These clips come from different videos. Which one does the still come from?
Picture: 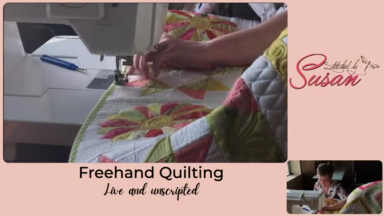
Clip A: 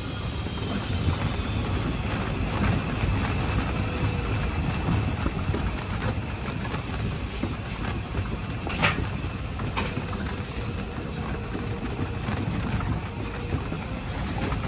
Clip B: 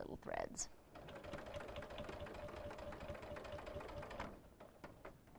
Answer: B